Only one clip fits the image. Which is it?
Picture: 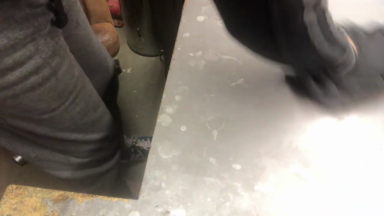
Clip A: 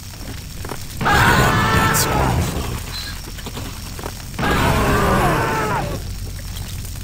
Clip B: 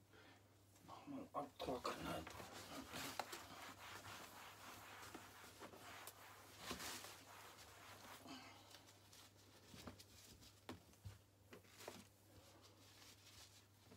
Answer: B